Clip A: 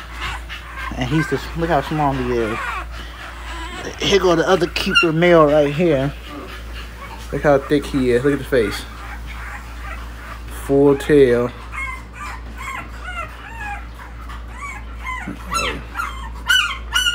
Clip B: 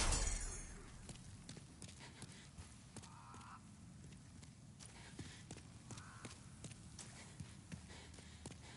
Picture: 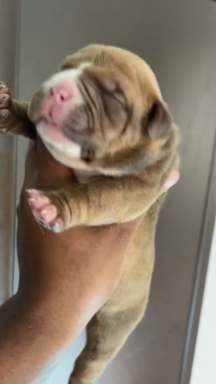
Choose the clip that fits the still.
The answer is A